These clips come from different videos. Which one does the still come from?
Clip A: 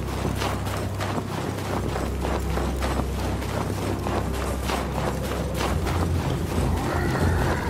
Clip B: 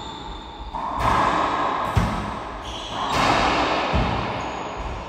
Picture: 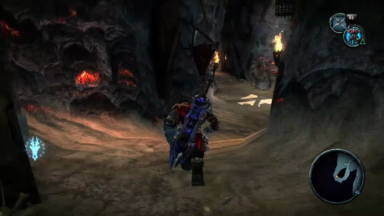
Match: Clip A